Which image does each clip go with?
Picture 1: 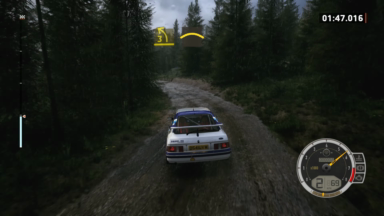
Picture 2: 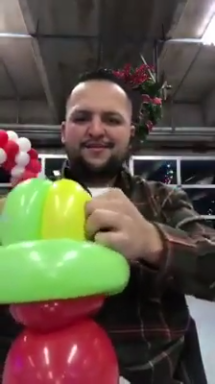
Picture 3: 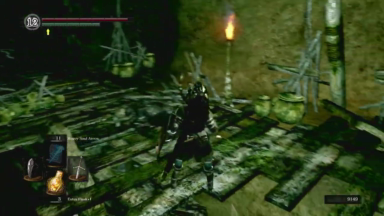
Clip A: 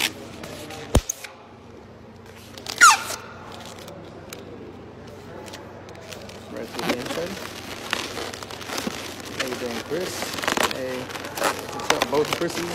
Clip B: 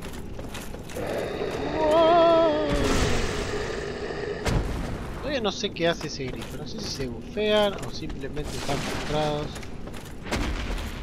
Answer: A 2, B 3